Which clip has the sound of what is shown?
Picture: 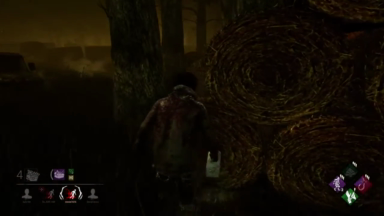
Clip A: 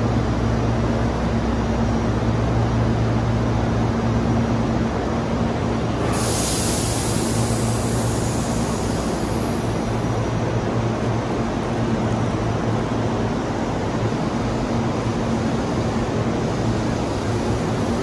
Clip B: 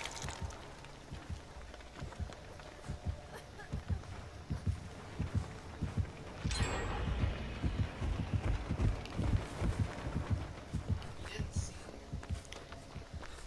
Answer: B